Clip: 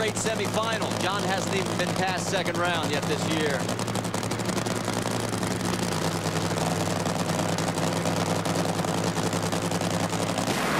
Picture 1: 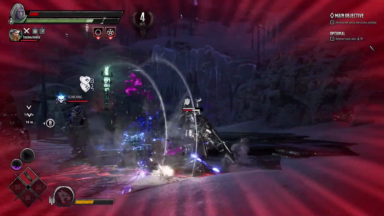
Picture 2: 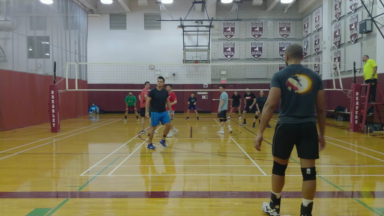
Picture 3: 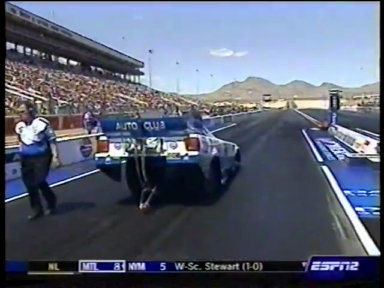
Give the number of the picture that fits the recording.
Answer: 3